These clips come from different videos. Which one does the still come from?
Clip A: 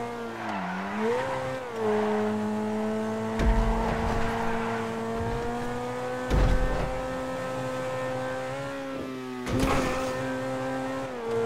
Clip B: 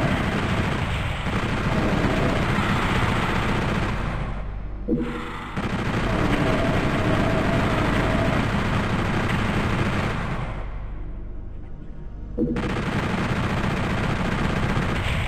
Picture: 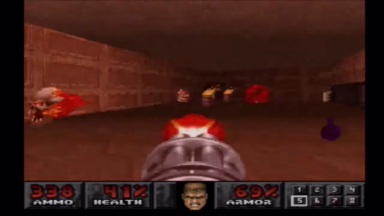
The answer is B